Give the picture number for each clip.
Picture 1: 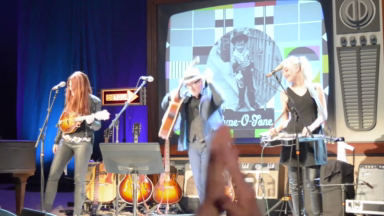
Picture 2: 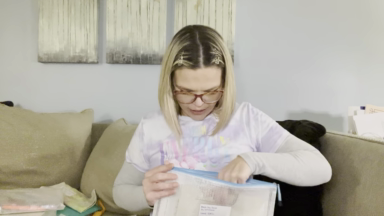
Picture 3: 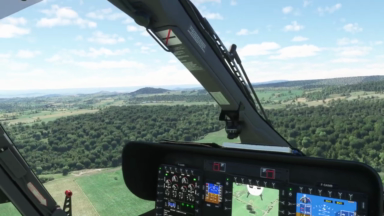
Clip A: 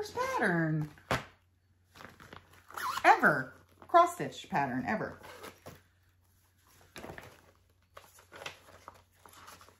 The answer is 2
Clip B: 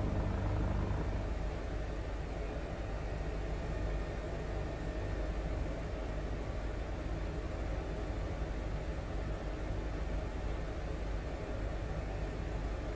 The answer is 3